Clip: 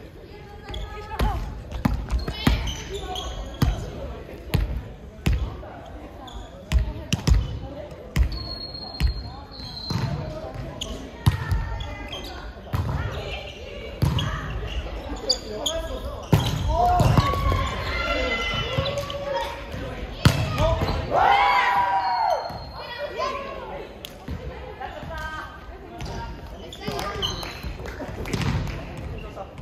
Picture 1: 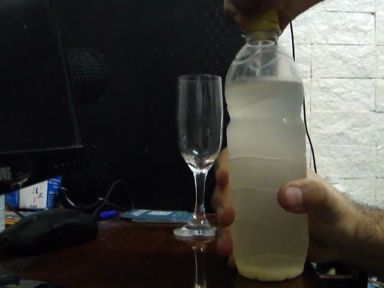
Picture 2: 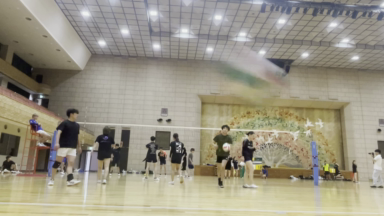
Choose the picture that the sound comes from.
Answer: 2